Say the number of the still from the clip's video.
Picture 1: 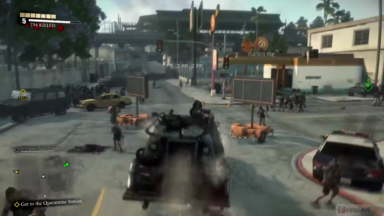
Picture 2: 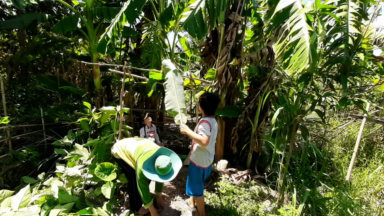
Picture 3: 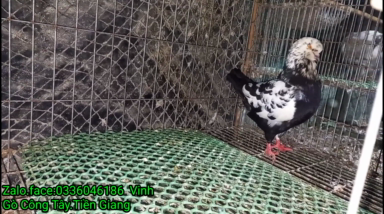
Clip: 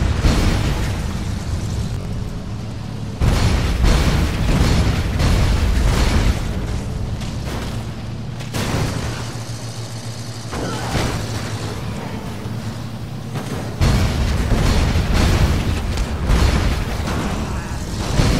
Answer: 1